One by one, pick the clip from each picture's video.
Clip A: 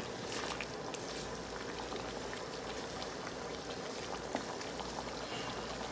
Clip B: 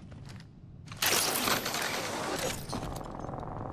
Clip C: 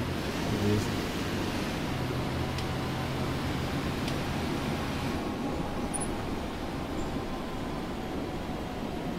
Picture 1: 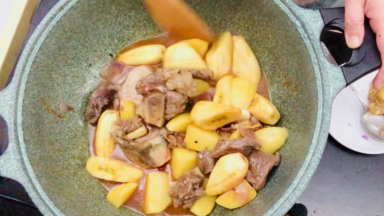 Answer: A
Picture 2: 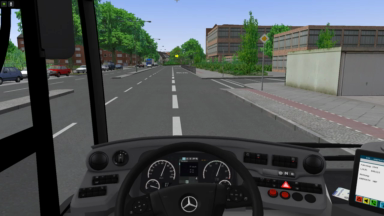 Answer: C